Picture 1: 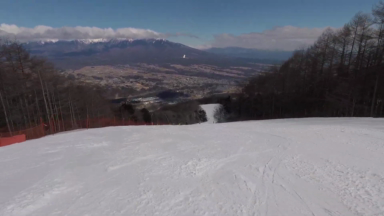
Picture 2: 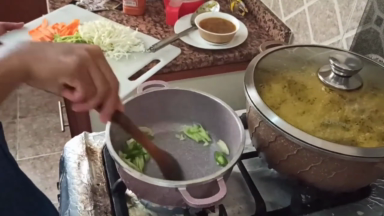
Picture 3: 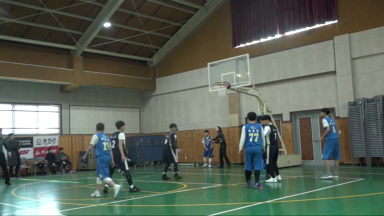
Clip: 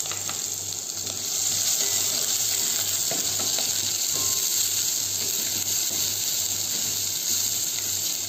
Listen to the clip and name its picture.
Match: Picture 2